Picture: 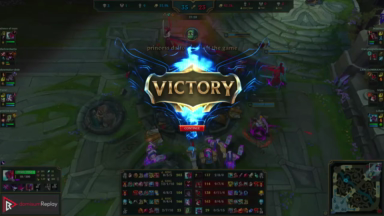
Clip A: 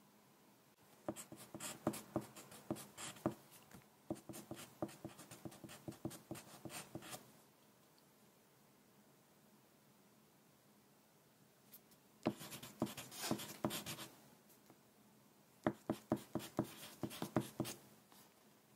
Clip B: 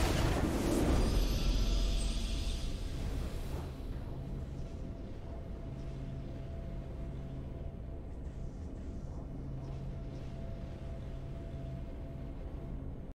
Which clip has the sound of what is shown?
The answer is B